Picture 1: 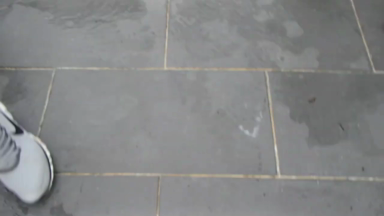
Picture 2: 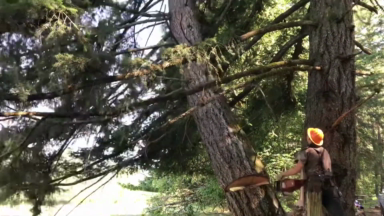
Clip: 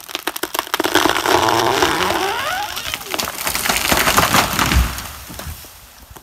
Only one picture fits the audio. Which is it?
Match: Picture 2